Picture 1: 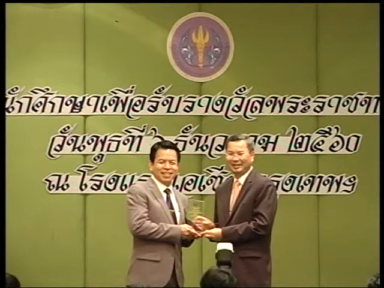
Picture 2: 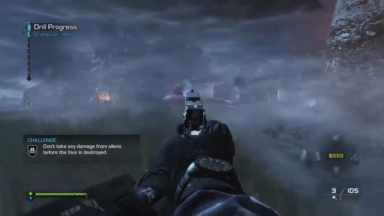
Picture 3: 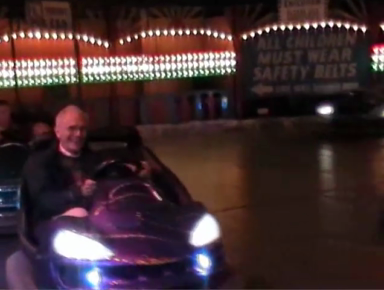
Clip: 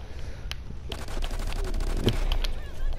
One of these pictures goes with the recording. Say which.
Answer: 2